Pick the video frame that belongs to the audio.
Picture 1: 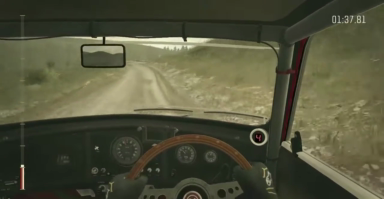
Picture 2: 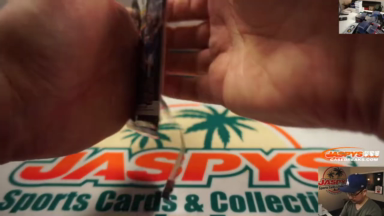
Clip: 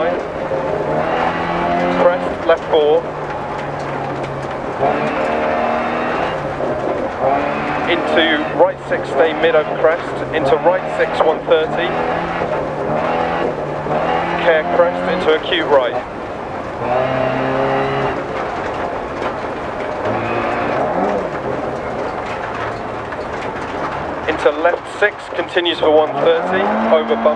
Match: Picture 1